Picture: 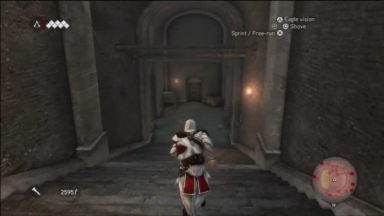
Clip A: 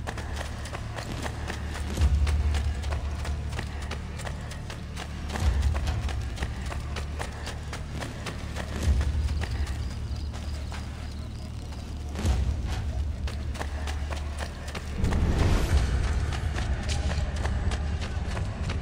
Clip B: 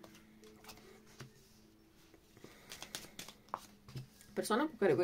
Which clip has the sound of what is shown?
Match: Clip A